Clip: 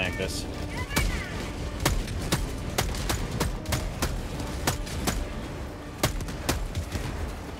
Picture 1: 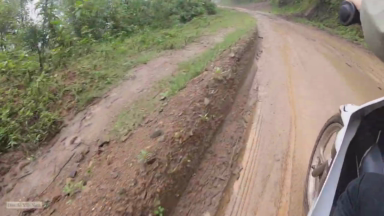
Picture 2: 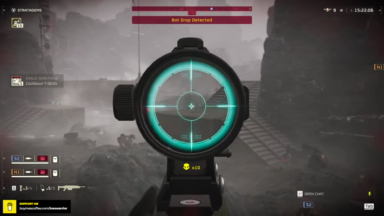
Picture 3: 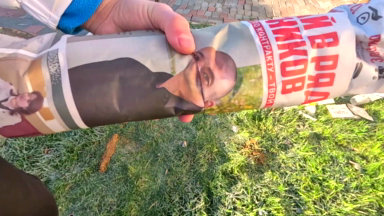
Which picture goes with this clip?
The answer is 2